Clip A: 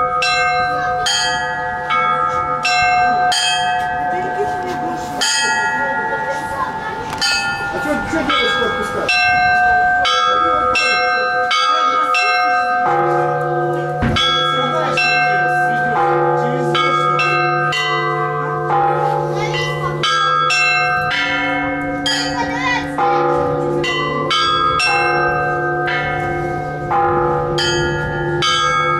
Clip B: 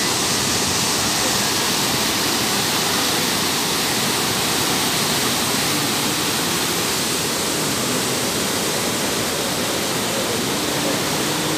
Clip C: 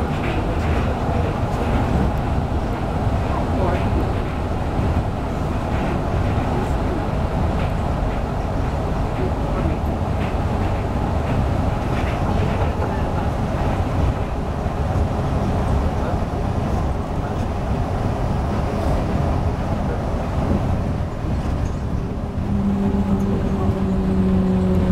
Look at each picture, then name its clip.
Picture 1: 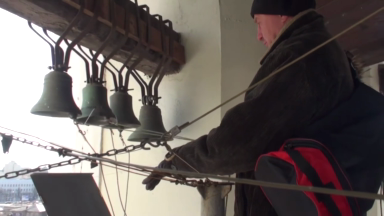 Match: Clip A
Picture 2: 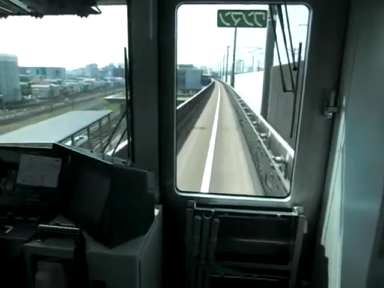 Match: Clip C